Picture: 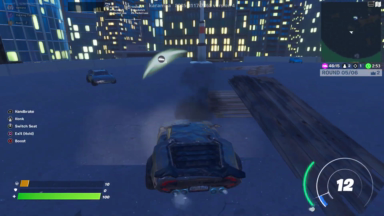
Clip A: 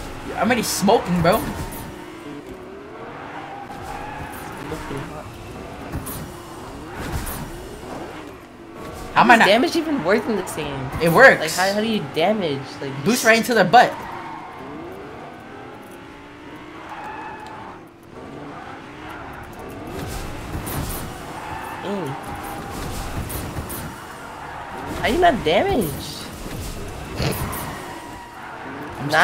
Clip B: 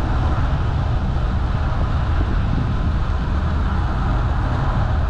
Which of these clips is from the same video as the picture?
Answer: A